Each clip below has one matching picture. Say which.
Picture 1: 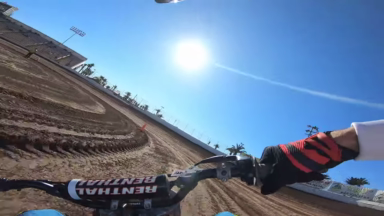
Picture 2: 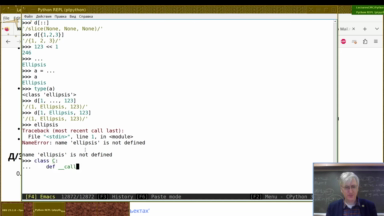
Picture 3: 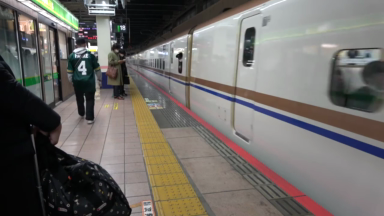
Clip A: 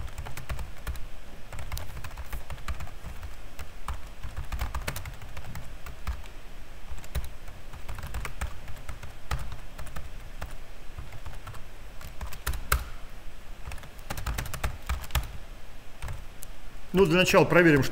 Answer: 2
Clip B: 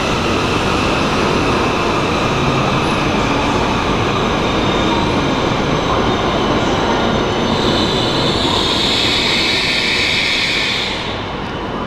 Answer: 3